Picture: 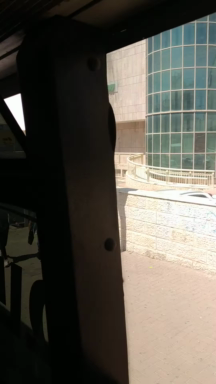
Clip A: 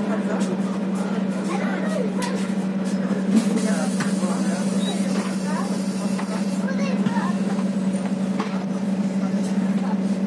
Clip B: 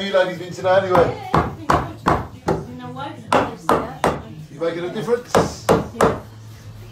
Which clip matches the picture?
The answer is A